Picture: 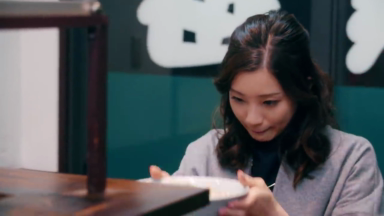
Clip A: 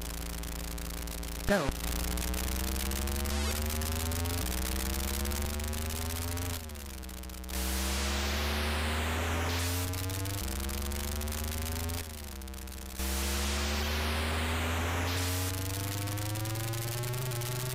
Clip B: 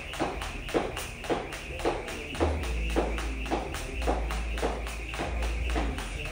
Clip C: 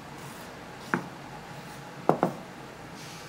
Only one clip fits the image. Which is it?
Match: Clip C